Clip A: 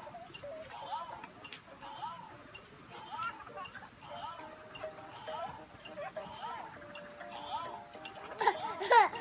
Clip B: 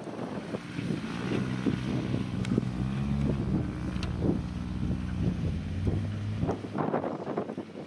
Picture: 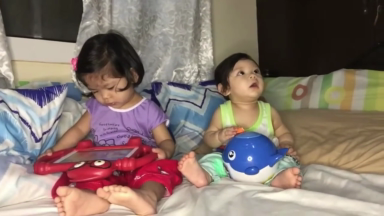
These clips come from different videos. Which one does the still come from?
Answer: A